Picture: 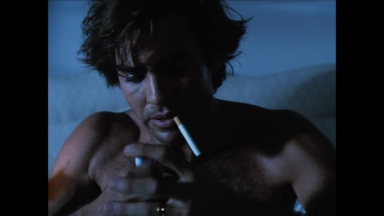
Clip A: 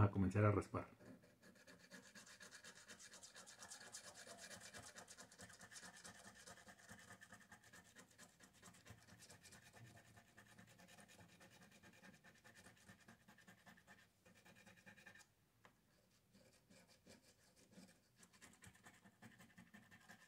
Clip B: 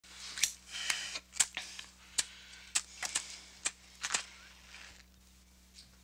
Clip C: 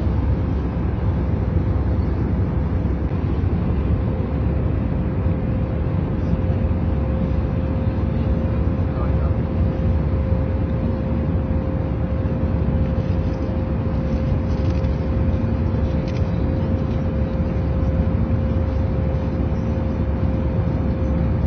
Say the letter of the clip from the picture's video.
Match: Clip B